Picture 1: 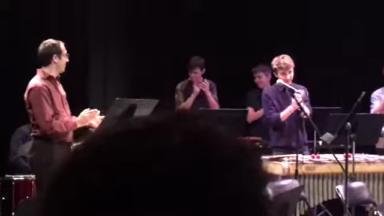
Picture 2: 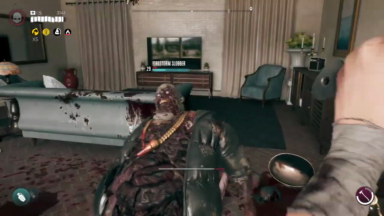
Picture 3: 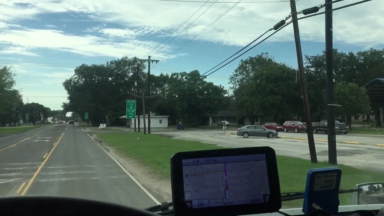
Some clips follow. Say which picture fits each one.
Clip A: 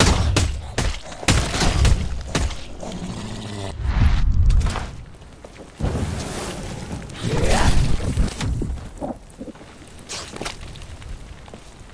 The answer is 2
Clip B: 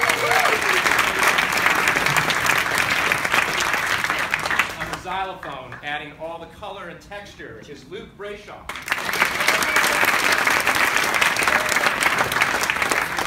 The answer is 1